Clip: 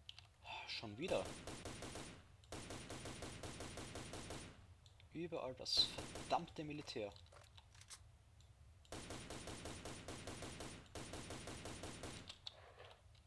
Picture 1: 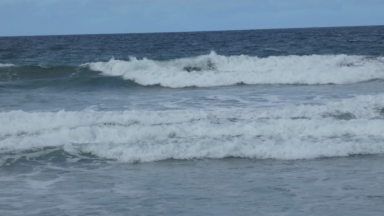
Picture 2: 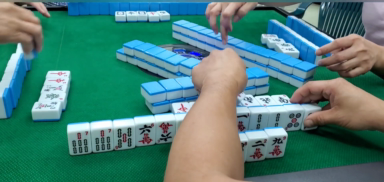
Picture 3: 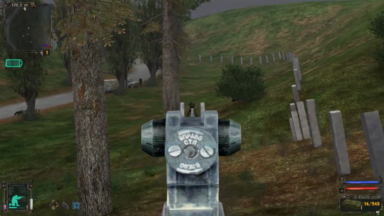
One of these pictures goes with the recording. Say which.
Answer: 3